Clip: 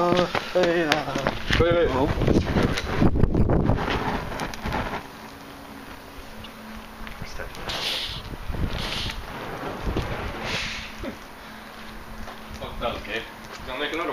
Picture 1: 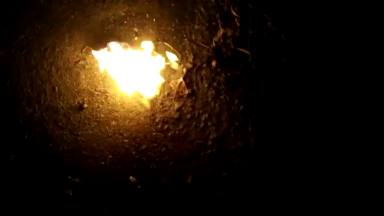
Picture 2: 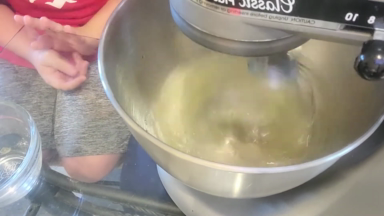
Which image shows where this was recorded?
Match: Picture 1